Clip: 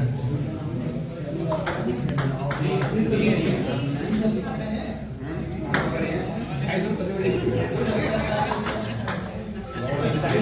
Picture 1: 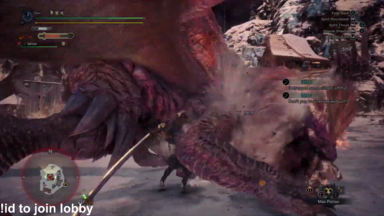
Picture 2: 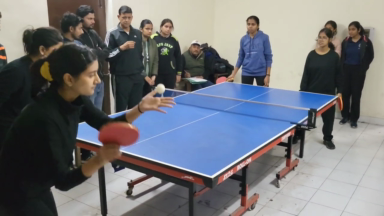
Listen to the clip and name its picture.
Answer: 2